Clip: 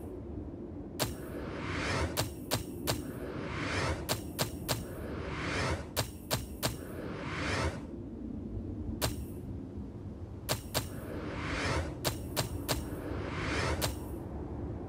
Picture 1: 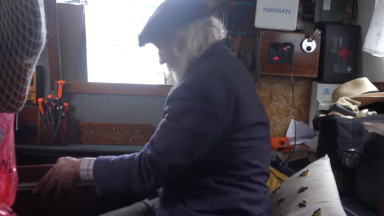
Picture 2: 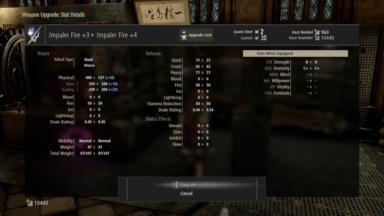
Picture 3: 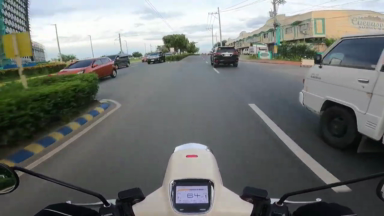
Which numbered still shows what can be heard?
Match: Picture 2